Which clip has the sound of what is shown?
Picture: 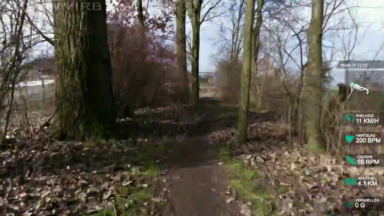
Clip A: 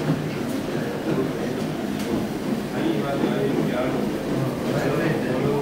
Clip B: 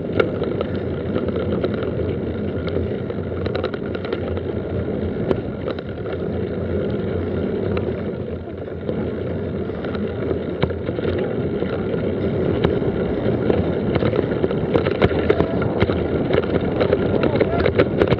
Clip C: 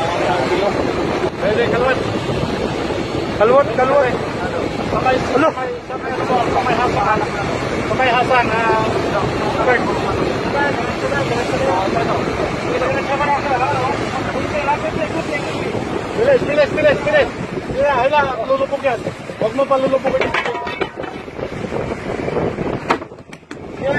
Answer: B